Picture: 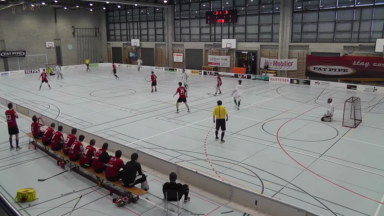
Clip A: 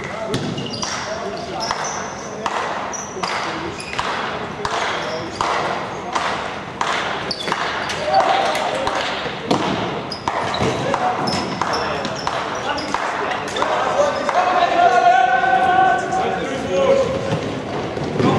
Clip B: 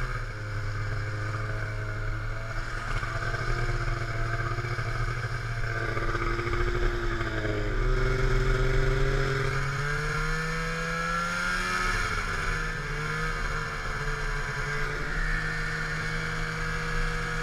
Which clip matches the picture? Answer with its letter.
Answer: A